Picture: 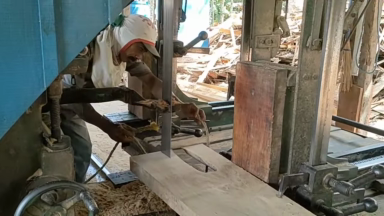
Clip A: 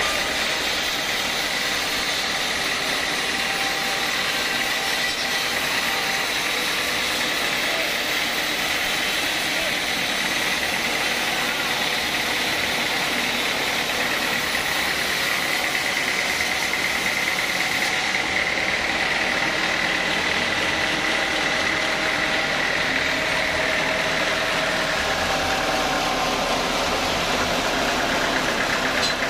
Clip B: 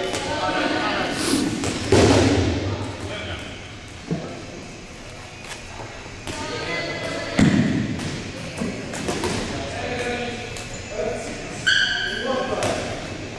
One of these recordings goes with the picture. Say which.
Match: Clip A